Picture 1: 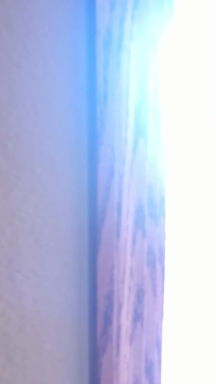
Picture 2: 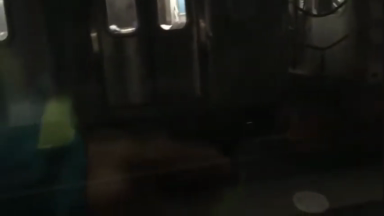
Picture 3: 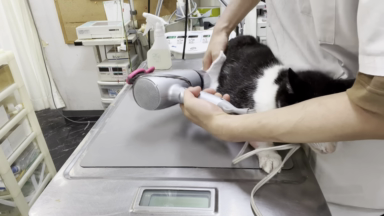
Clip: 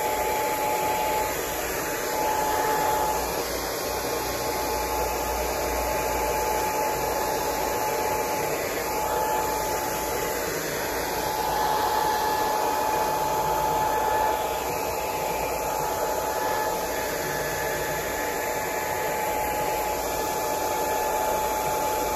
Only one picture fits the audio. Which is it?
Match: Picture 3